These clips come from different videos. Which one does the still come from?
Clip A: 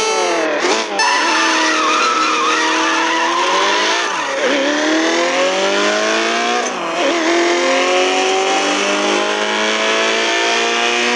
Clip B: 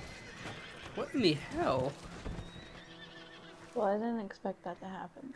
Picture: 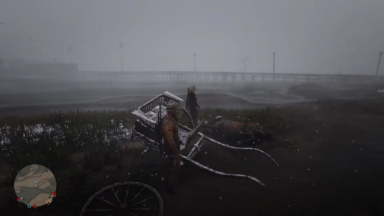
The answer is B